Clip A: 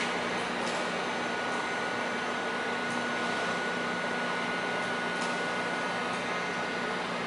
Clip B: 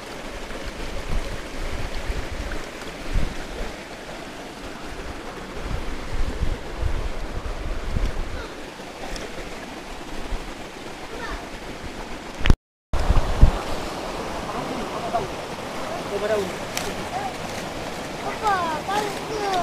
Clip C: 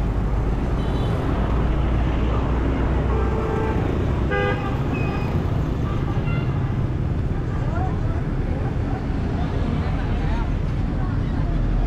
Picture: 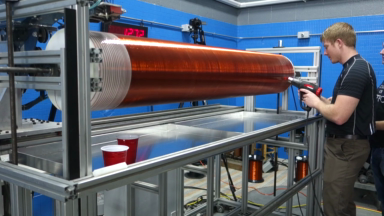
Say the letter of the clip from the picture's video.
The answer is A